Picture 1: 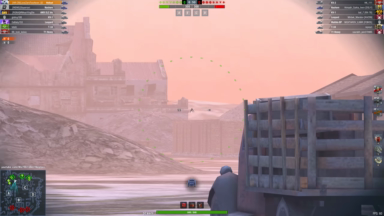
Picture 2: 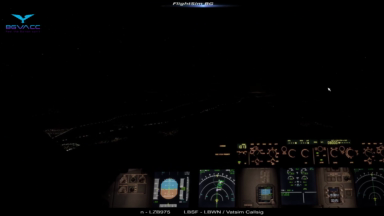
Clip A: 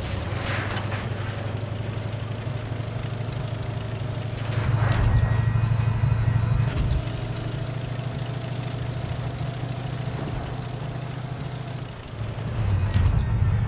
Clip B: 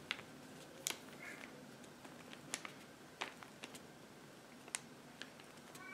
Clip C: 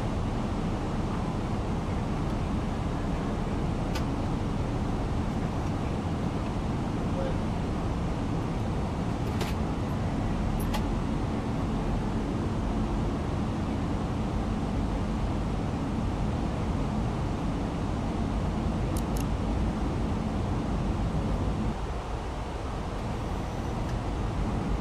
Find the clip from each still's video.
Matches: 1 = A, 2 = C